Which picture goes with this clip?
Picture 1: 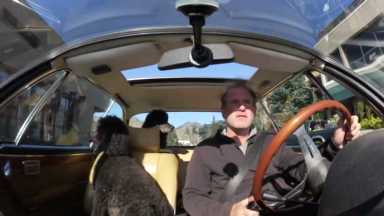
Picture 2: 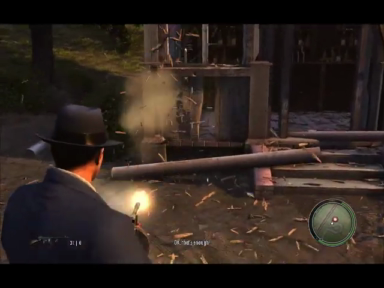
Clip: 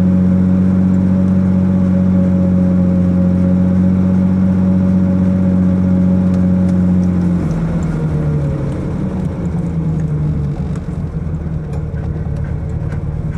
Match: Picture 1